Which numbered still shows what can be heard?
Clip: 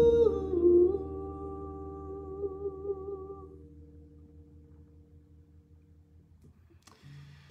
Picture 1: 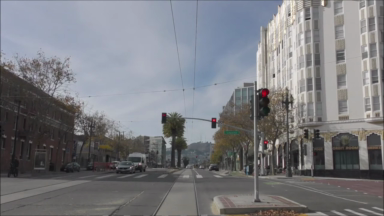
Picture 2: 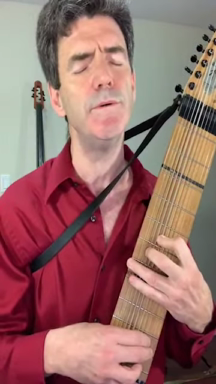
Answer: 2